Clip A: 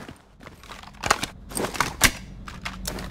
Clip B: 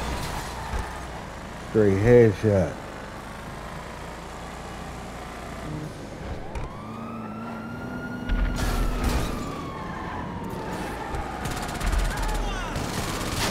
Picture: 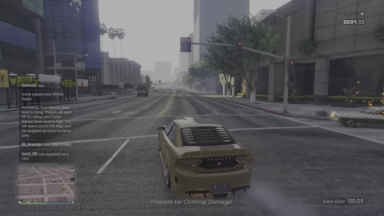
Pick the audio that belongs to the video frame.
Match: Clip B